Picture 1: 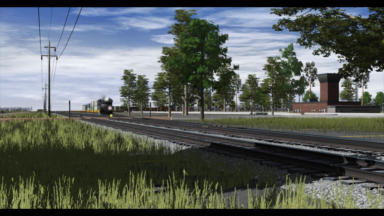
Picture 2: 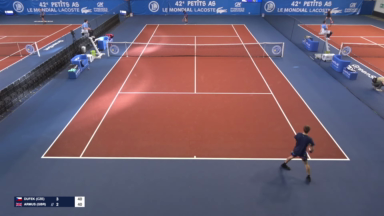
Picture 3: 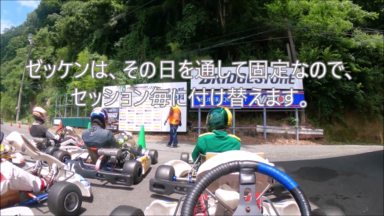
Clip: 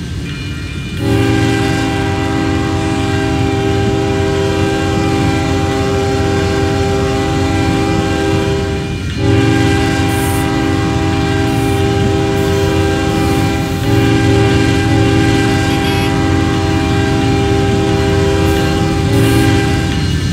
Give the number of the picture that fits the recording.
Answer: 1